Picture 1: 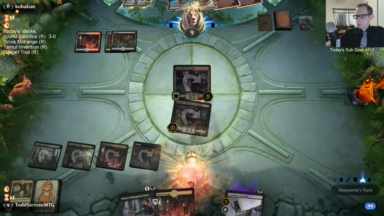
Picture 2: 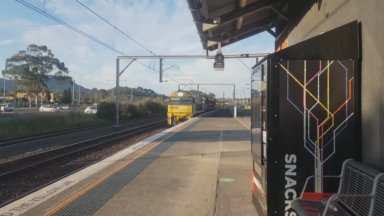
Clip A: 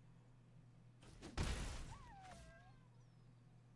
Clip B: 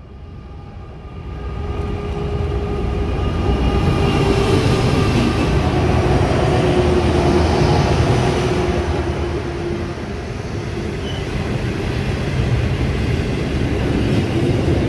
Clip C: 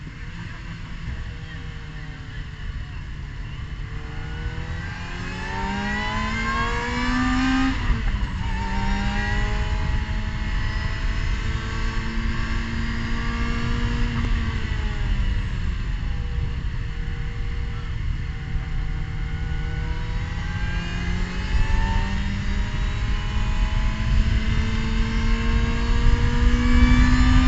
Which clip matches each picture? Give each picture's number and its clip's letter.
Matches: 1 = A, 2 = B